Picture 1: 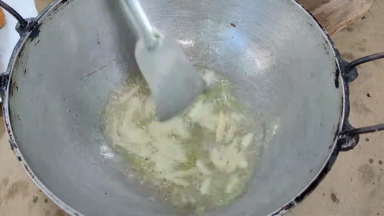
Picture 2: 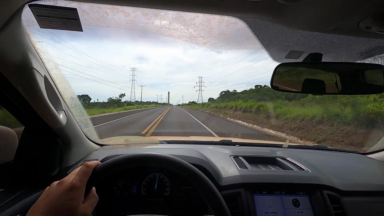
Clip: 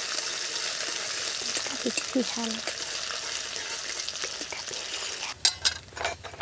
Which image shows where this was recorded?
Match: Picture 1